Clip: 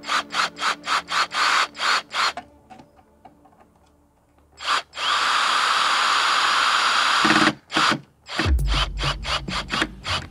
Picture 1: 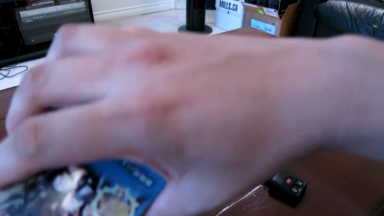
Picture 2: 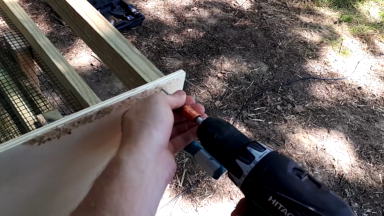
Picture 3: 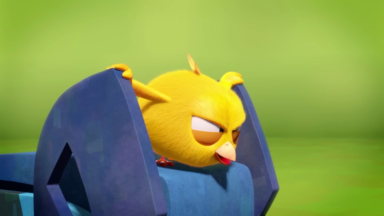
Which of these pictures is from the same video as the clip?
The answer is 2